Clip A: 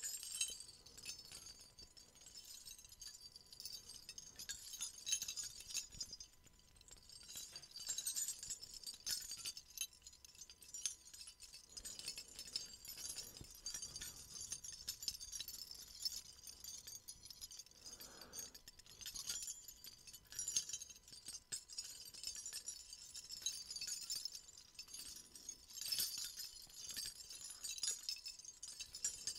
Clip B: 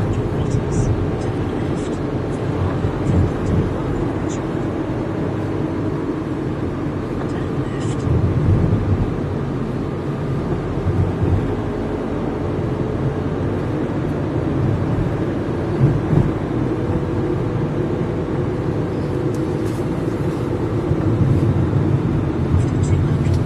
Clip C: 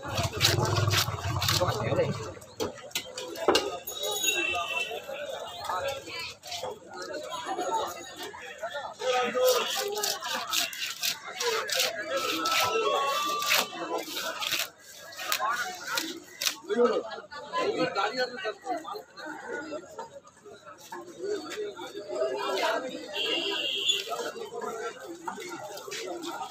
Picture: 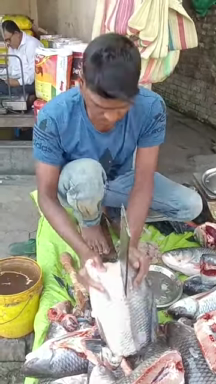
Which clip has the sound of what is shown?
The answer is C